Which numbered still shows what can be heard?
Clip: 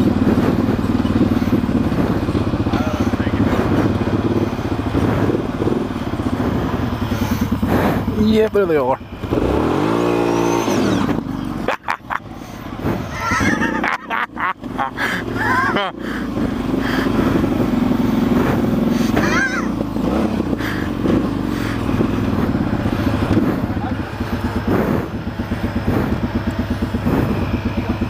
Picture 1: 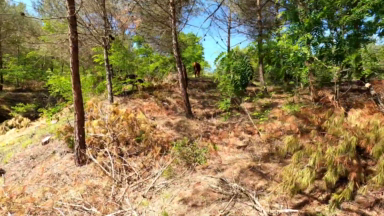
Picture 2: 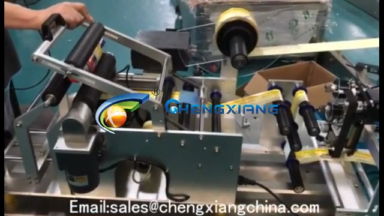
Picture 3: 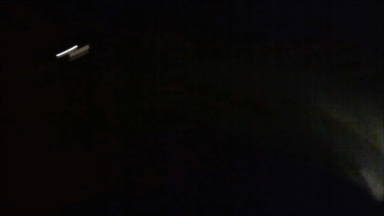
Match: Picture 3